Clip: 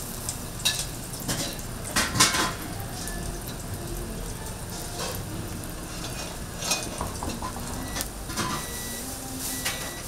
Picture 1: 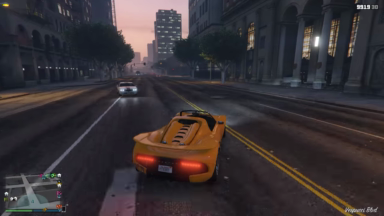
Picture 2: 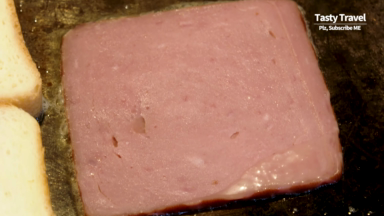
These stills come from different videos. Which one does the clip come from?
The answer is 2